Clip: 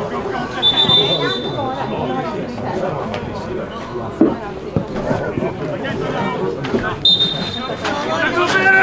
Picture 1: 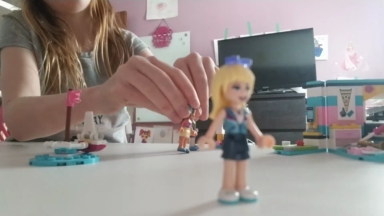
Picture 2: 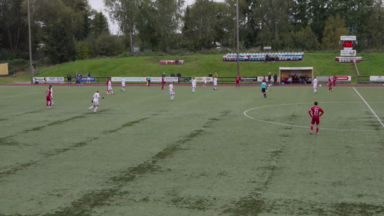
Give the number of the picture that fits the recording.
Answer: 2